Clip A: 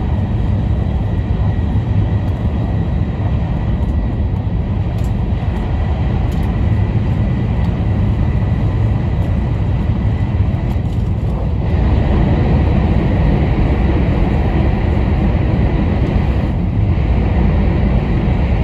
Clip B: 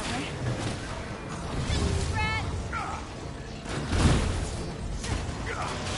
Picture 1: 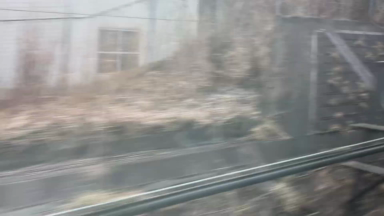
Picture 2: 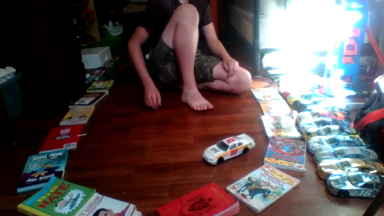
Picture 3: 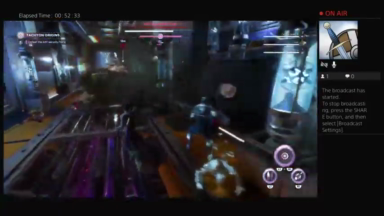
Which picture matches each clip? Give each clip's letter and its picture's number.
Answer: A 1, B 3